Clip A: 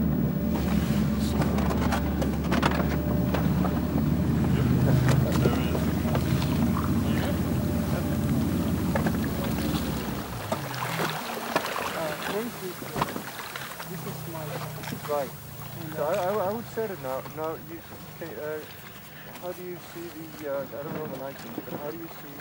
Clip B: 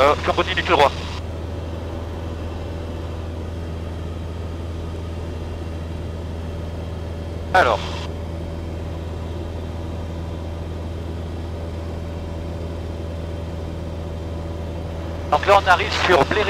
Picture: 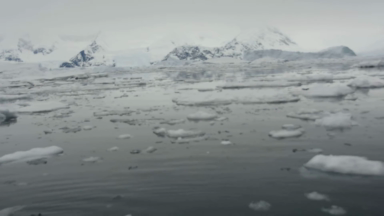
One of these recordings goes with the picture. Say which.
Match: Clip A